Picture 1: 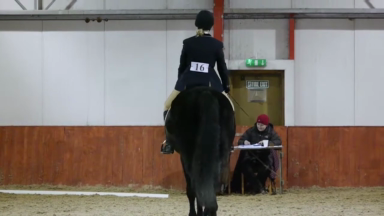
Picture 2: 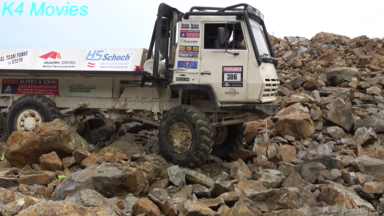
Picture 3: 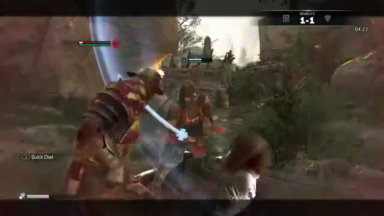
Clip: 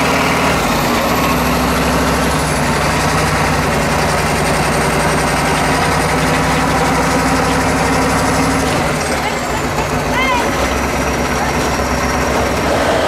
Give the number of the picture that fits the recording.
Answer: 2